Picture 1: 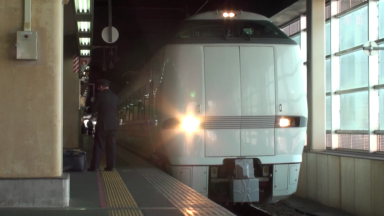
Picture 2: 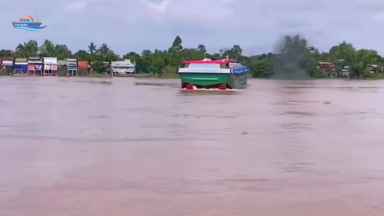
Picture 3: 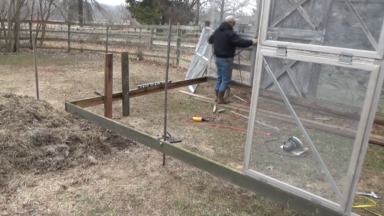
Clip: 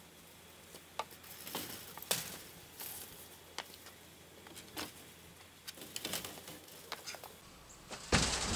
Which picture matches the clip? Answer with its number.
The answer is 3